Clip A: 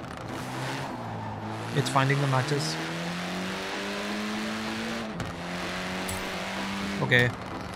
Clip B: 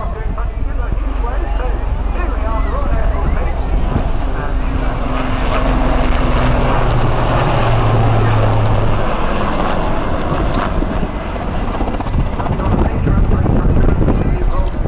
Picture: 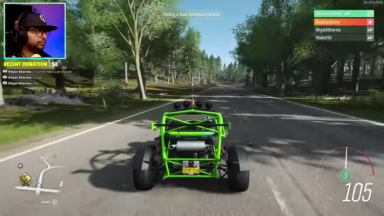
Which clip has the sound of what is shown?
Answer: A